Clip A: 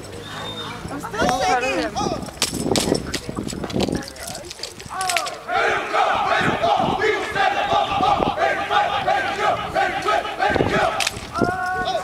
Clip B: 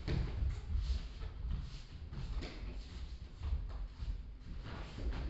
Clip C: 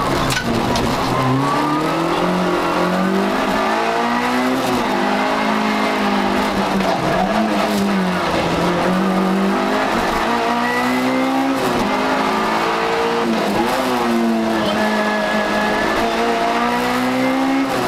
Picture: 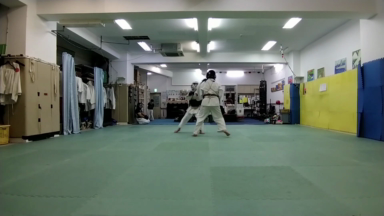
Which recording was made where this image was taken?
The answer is B